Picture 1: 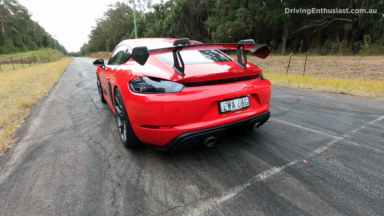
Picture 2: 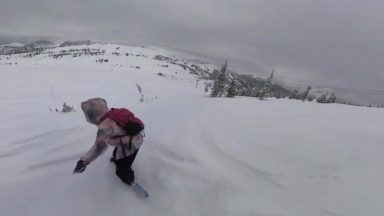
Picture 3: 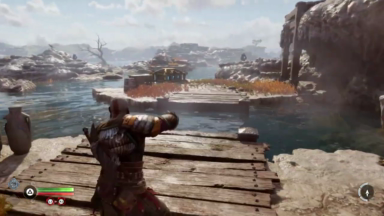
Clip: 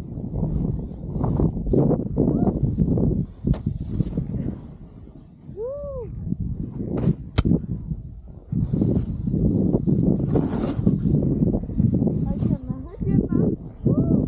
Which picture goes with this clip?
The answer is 2